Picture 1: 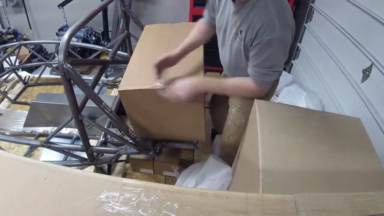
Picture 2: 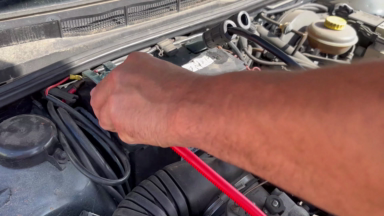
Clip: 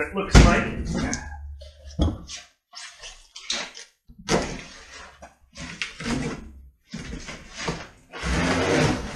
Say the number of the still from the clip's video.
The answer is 1